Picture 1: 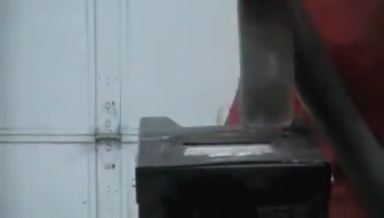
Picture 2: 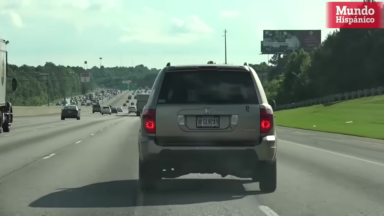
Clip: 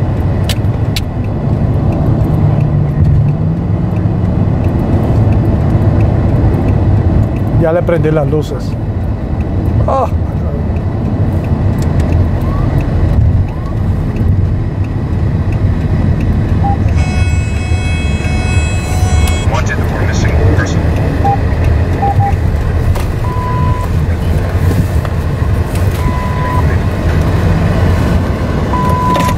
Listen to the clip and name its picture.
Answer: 2